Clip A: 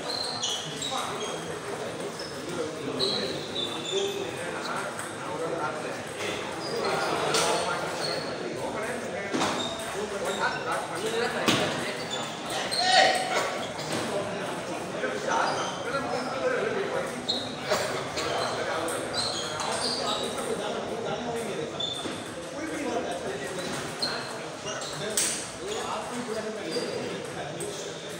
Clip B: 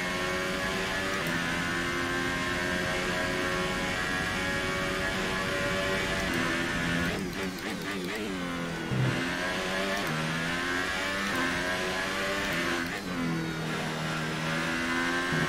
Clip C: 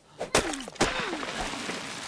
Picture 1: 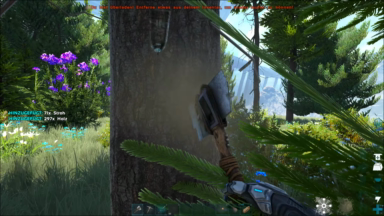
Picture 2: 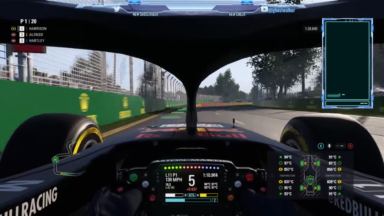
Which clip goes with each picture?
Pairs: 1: C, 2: B